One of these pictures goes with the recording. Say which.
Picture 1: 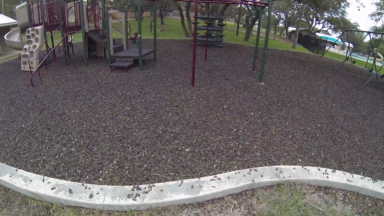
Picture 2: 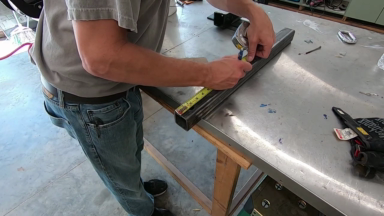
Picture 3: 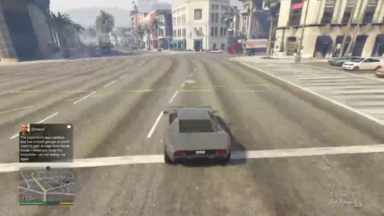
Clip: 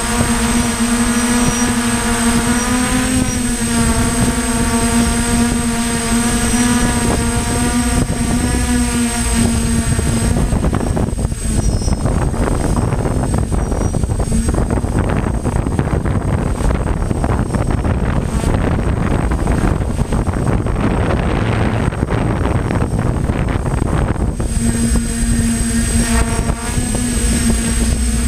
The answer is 1